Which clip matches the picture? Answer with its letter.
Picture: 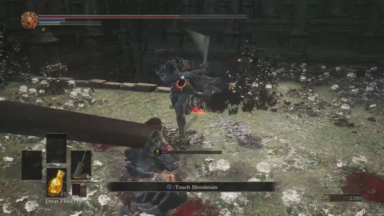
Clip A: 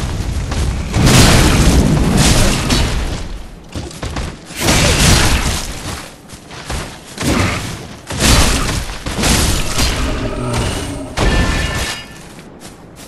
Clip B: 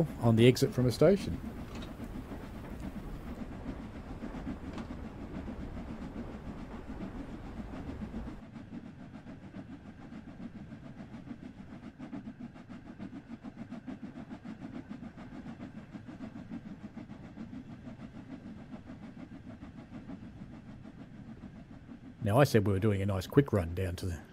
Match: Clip A